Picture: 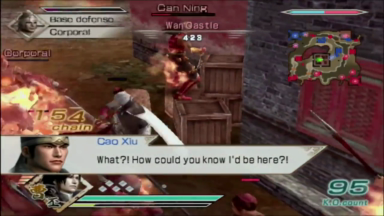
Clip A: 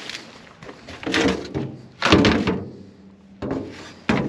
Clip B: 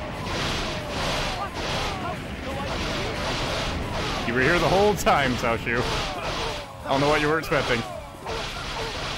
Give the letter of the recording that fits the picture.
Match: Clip B